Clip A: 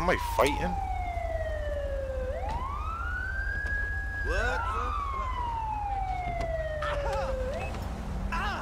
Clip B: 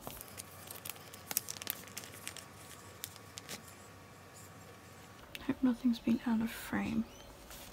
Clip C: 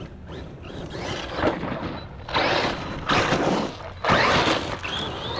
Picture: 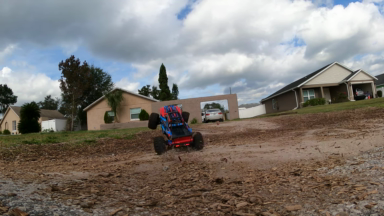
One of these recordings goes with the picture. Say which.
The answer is C